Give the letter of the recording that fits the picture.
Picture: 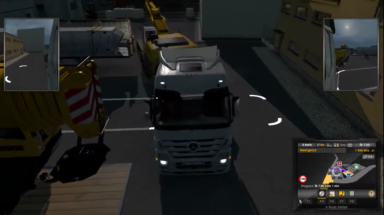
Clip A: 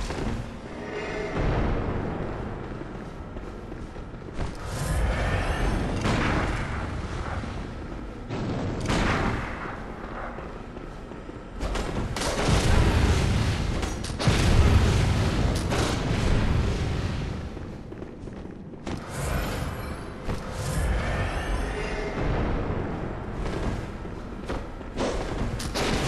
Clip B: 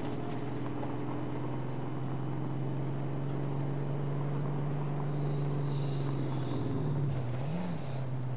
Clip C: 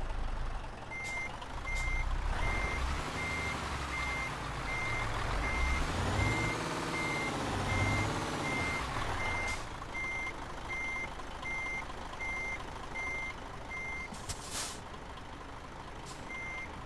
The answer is C